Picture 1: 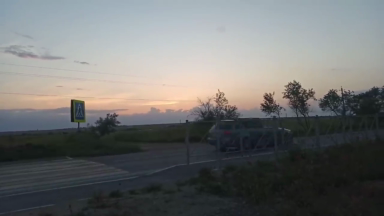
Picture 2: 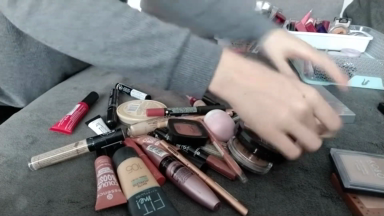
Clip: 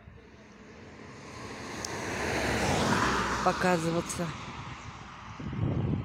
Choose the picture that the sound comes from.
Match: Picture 1